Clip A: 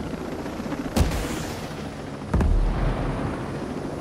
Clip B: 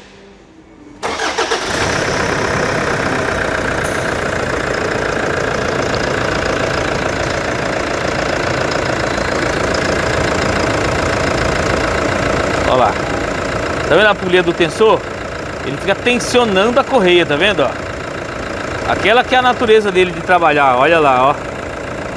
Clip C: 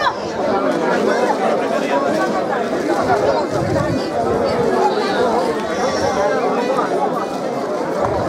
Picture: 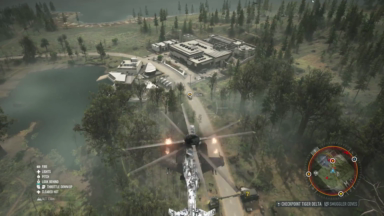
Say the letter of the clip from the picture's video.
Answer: A